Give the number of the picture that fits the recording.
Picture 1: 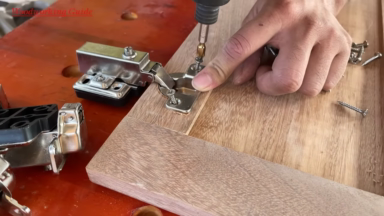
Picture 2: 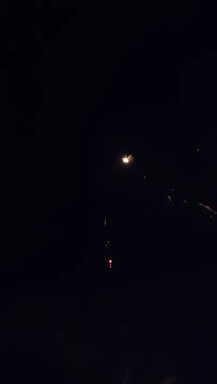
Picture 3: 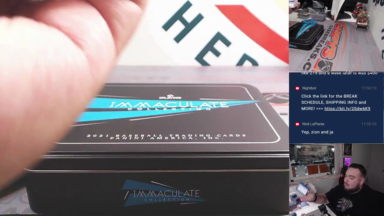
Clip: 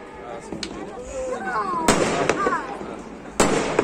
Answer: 2